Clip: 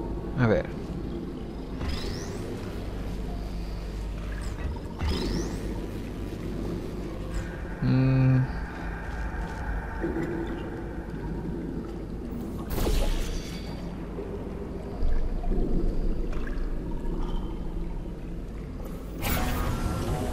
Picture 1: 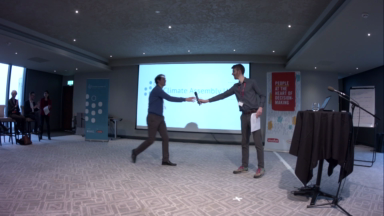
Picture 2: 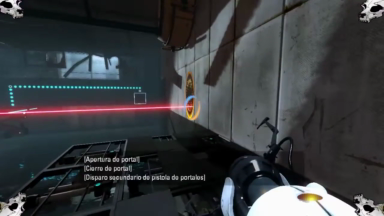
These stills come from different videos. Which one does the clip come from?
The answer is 2